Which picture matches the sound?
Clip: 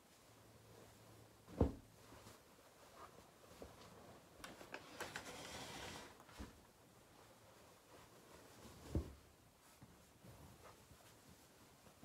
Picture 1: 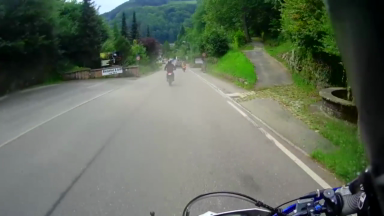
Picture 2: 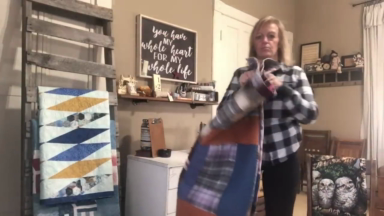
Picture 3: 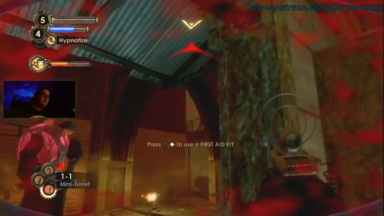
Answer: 2